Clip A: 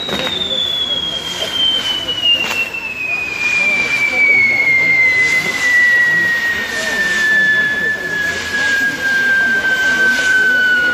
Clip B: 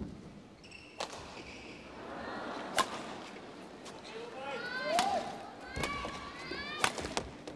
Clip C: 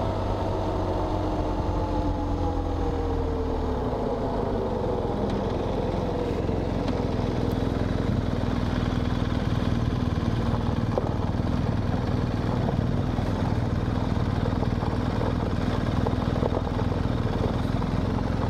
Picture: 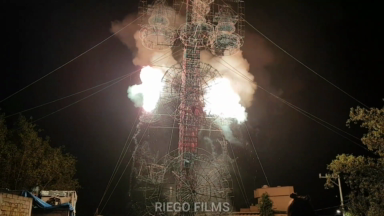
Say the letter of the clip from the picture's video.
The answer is A